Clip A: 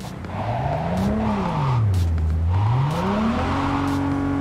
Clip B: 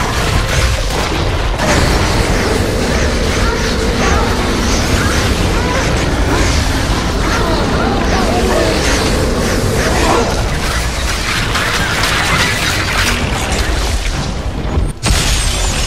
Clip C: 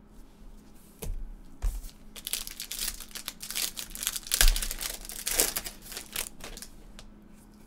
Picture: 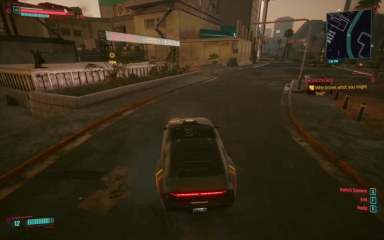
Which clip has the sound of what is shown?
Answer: A